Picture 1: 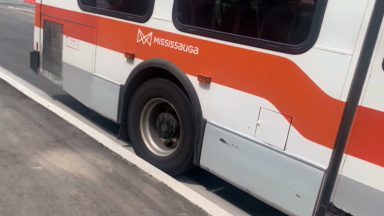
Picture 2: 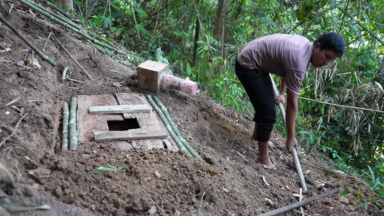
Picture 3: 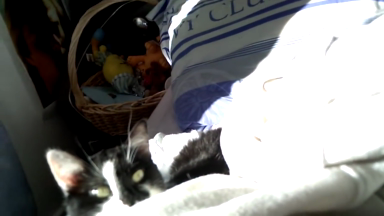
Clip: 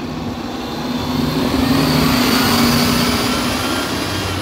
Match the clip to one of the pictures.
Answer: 1